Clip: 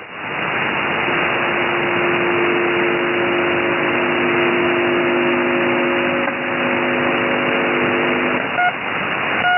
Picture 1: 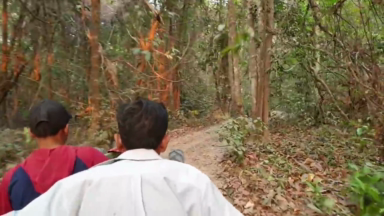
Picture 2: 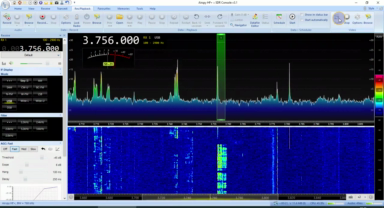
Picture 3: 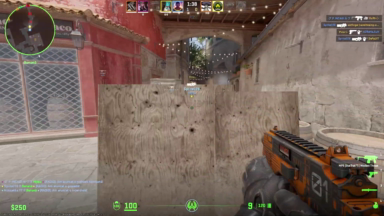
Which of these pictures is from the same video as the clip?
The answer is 2